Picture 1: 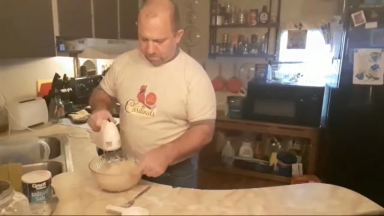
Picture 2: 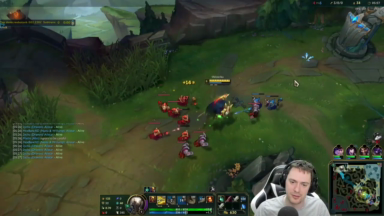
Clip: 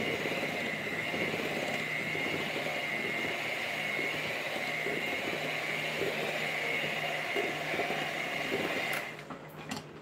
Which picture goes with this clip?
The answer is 1